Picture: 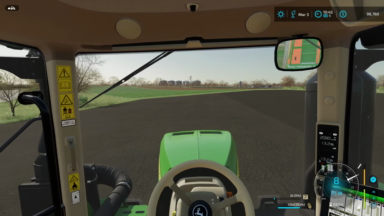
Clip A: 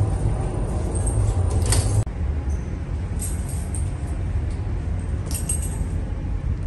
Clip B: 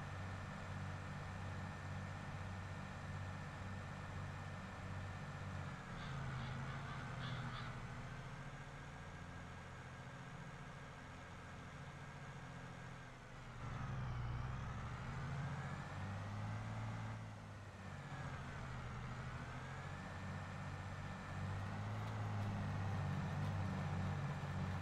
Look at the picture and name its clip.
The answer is B